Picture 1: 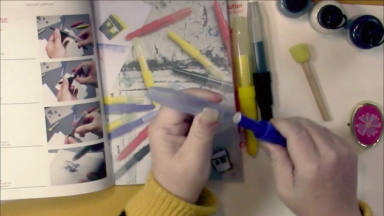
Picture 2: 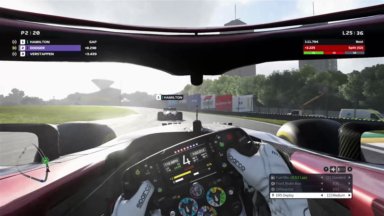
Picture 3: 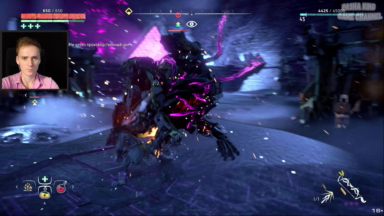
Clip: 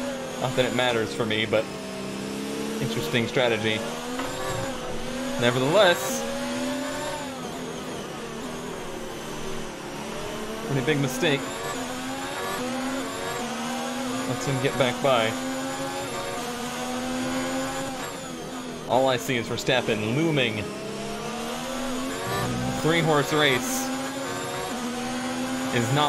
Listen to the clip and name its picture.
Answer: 2